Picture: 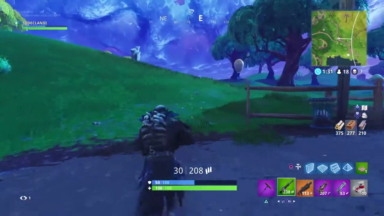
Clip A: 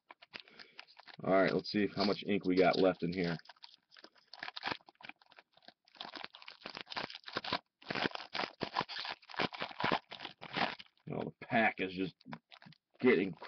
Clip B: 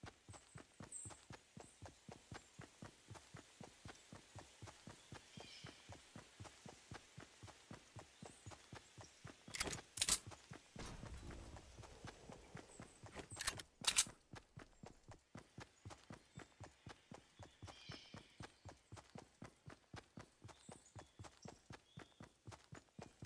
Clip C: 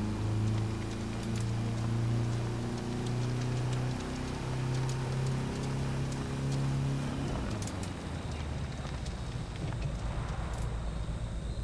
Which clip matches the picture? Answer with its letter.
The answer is B